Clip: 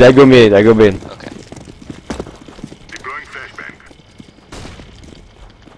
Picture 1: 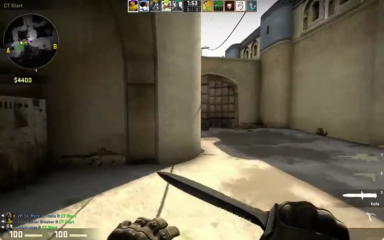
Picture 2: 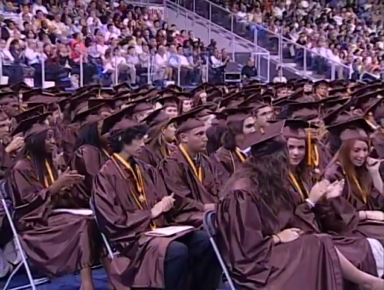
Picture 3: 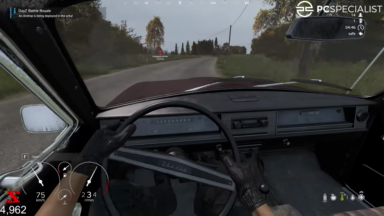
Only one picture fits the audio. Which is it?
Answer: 1